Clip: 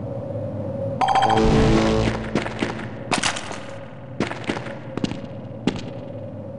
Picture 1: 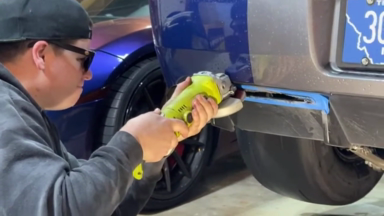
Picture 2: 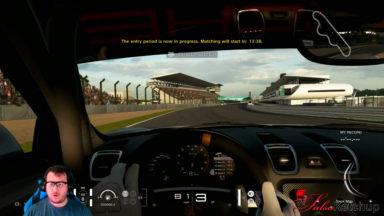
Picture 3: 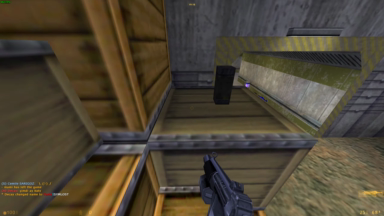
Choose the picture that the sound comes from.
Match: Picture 3